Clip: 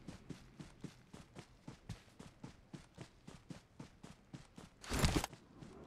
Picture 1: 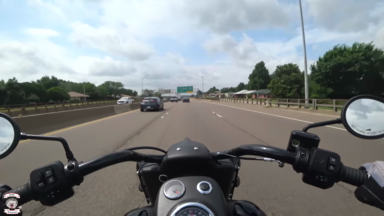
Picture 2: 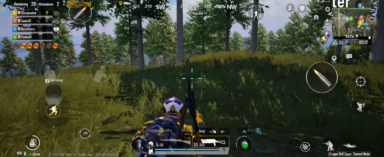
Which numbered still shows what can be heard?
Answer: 2